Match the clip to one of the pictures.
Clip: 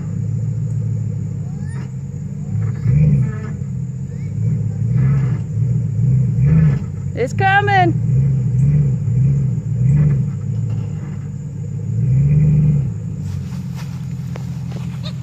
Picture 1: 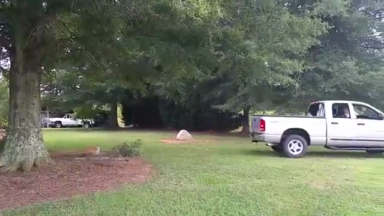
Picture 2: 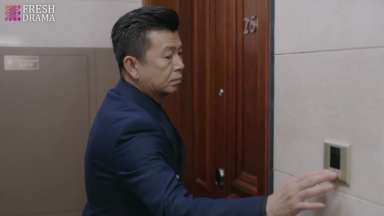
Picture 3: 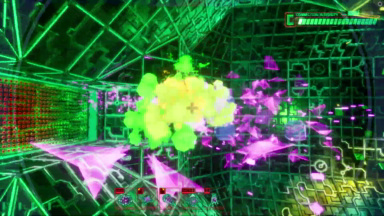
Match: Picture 1